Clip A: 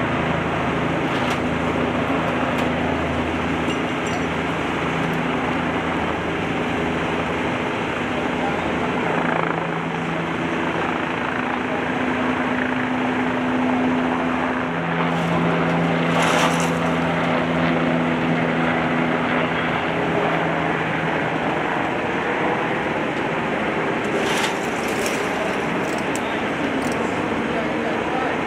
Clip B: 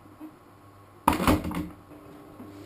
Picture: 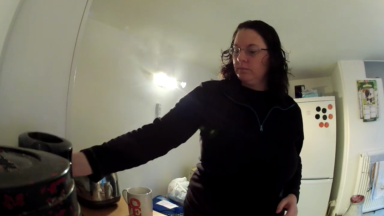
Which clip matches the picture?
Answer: B